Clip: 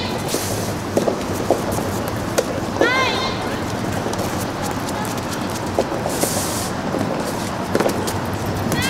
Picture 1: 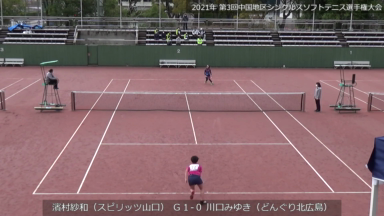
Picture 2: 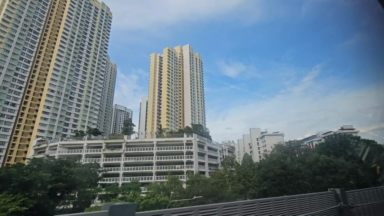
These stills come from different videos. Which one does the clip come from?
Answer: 1